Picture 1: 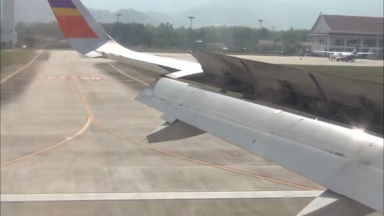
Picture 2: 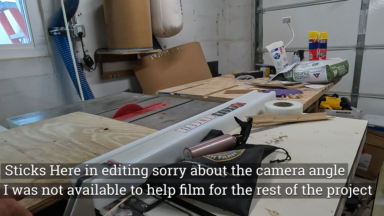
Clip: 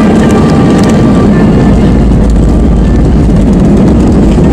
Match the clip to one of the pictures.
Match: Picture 1